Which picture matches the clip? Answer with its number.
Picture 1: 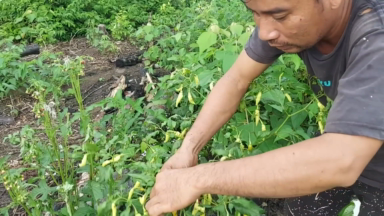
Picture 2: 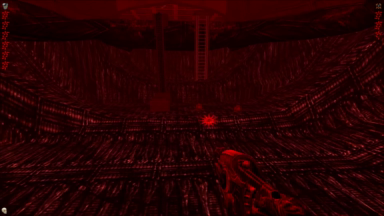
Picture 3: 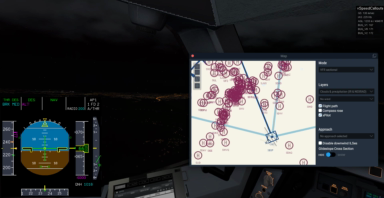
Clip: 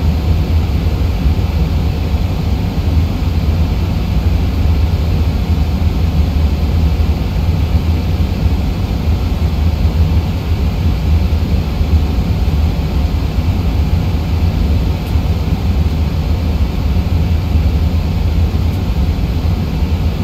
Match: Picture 3